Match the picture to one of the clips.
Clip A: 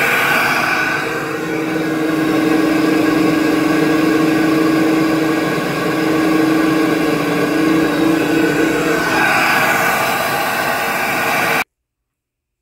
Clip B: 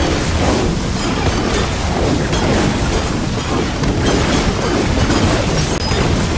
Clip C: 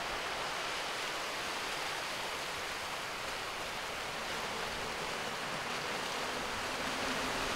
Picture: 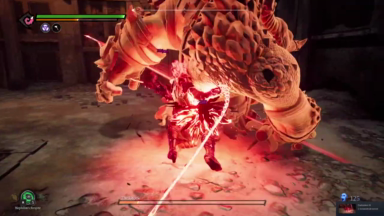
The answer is B